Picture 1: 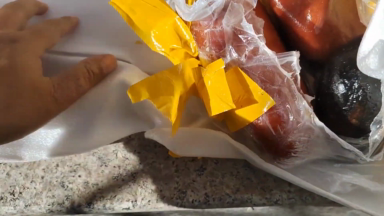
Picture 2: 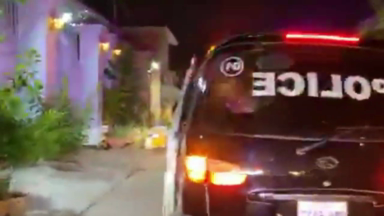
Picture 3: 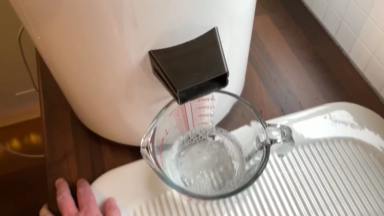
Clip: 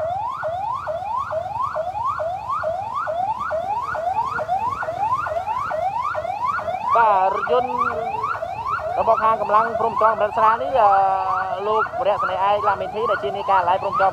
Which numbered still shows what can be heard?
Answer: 2